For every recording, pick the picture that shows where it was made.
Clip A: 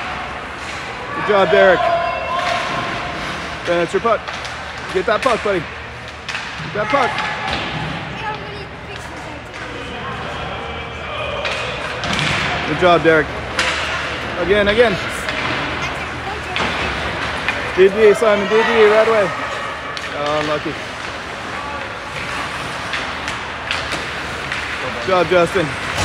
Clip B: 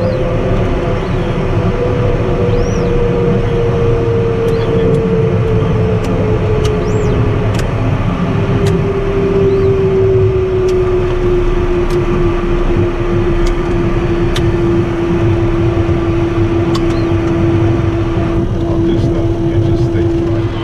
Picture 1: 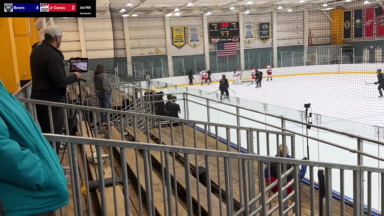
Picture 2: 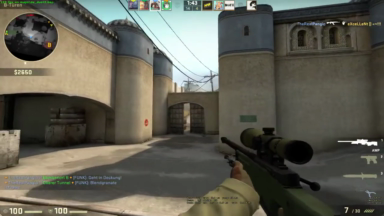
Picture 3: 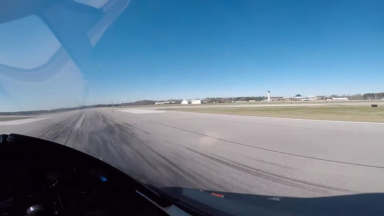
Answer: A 1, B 3